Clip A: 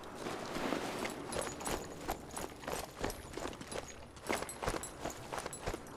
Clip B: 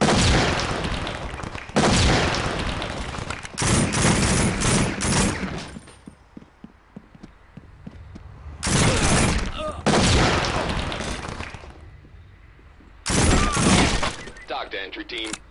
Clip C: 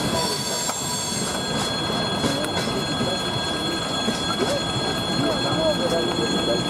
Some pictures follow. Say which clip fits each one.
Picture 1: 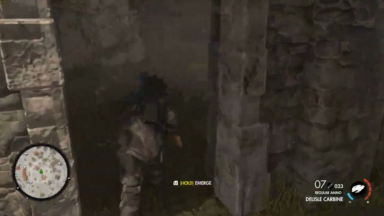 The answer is A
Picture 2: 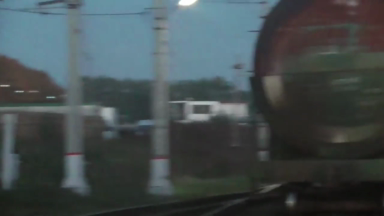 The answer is C